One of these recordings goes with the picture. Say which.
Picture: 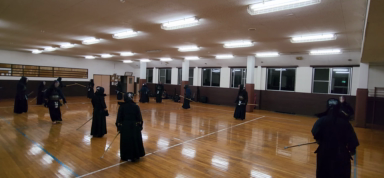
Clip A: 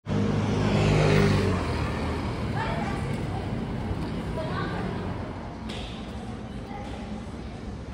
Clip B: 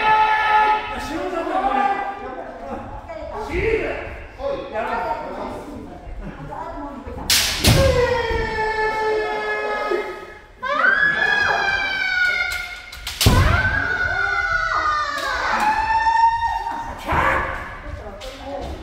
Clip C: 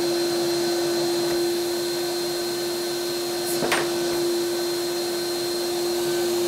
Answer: B